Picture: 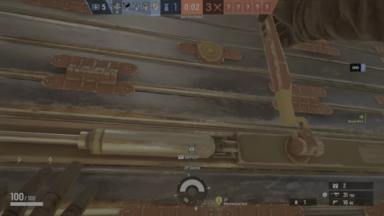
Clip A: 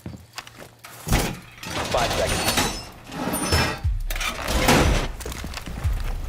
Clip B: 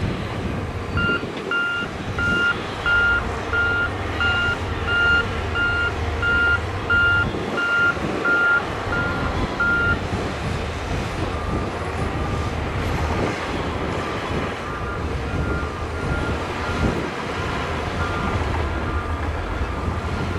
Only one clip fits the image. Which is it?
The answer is A